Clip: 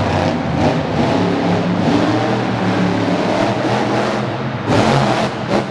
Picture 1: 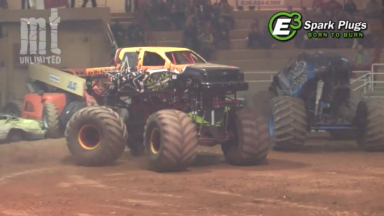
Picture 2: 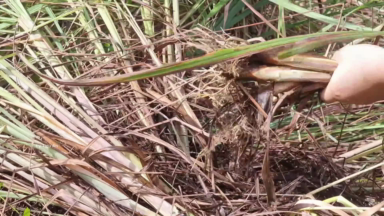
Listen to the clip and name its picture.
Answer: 1